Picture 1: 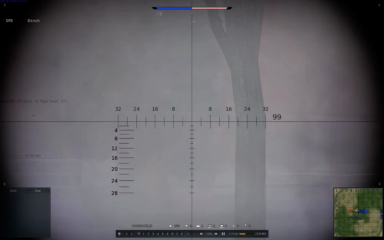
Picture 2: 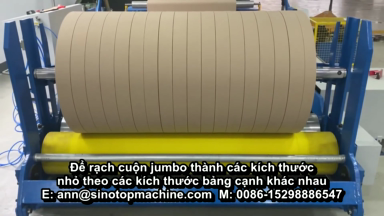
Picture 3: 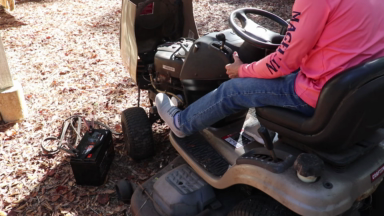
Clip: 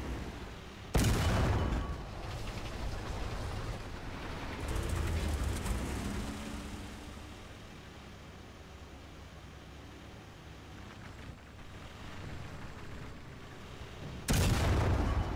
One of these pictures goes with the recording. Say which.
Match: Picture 1